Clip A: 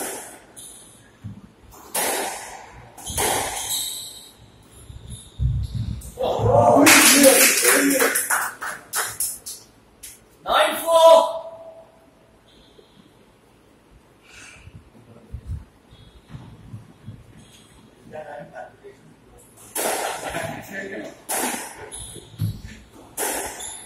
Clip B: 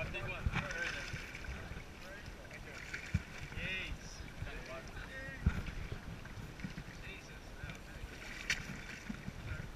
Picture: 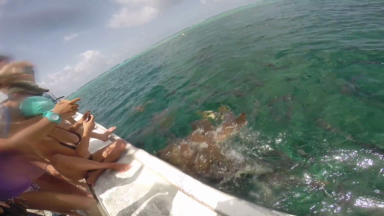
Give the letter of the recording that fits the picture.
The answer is B